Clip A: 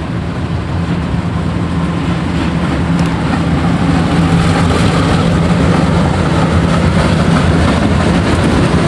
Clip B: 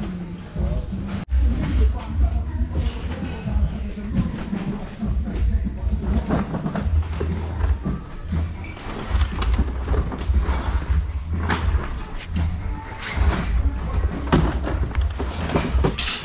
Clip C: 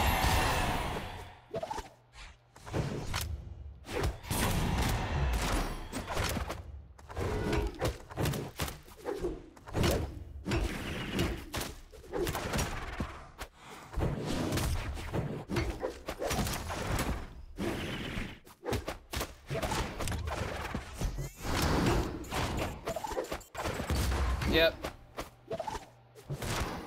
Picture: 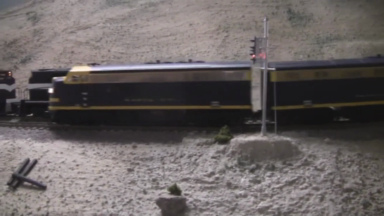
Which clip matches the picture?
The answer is A